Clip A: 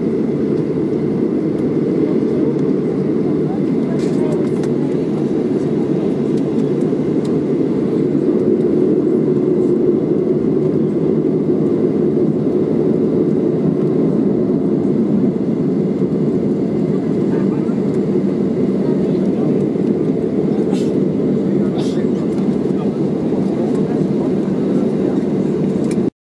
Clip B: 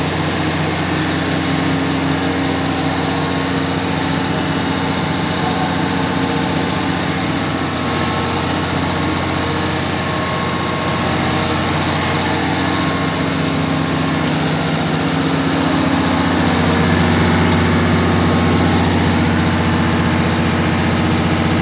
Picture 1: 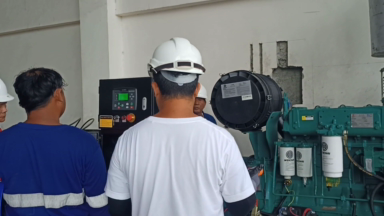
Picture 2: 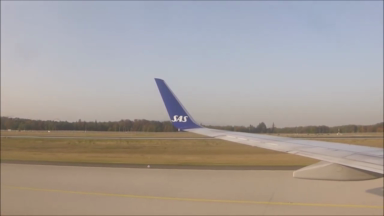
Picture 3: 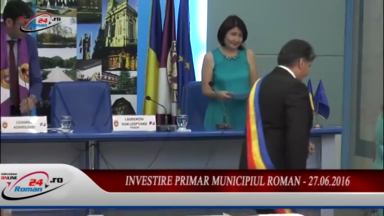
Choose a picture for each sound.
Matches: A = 2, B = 1